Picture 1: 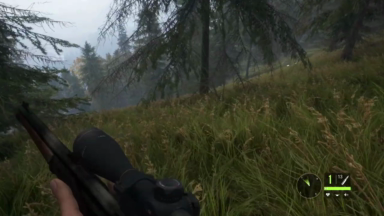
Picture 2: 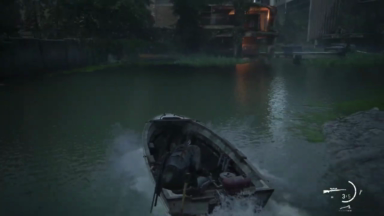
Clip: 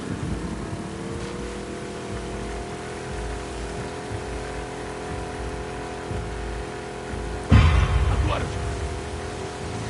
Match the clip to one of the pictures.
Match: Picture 2